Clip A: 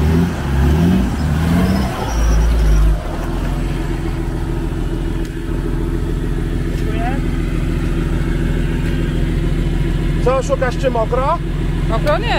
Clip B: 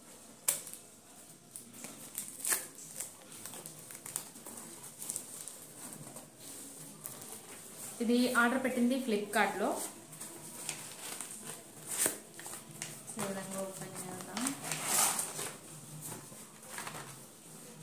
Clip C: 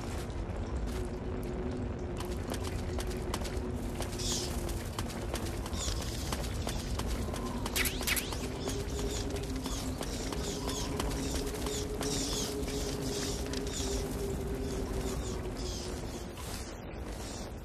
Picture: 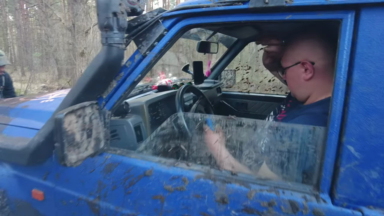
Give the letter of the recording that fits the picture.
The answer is A